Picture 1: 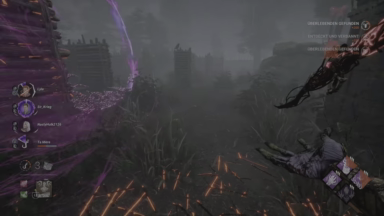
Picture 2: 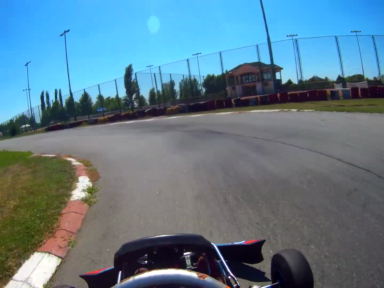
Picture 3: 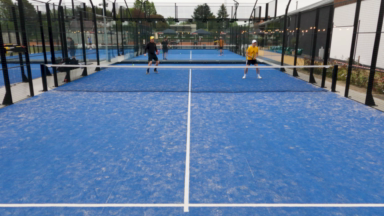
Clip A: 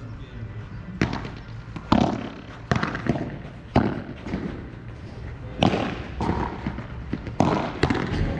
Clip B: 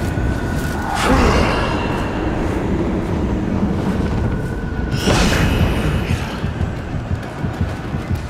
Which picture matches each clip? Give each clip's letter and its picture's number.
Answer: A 3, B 1